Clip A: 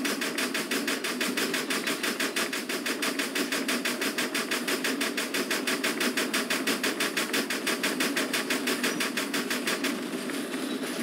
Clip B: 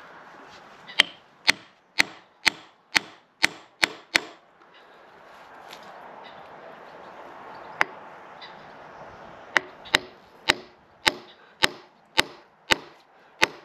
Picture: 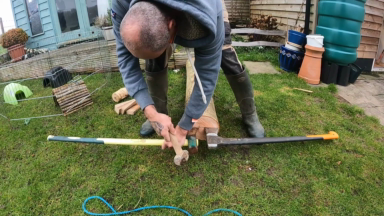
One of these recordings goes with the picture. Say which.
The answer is B